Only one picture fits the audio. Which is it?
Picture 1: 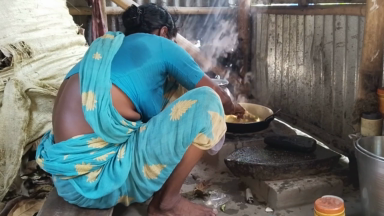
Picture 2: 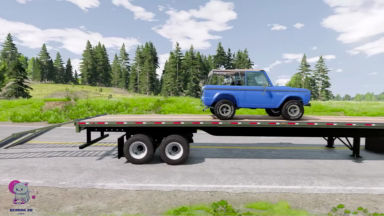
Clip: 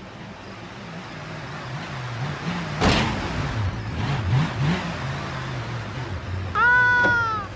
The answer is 2